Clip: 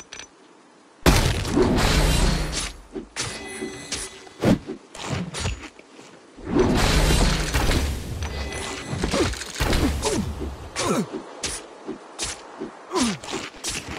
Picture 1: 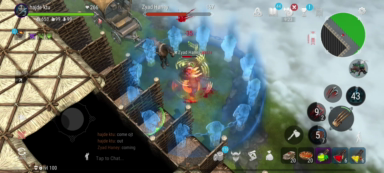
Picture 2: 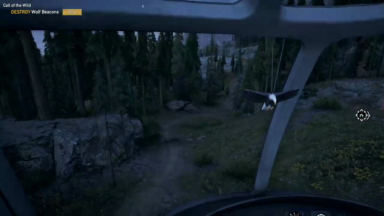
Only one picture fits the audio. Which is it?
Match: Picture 1